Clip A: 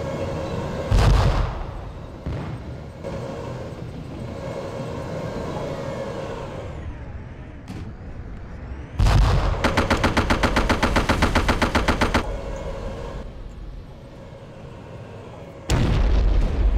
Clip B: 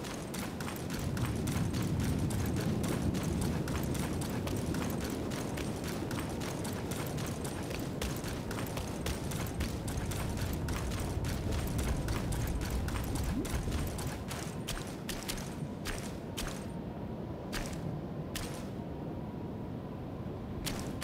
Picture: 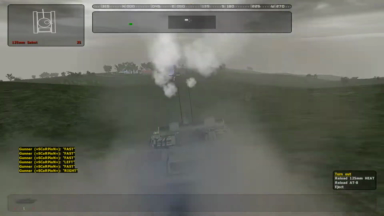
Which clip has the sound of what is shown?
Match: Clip A